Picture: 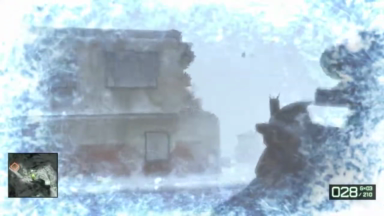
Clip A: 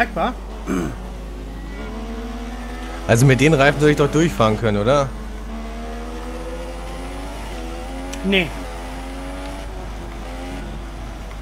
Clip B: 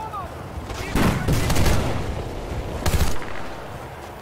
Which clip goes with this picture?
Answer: B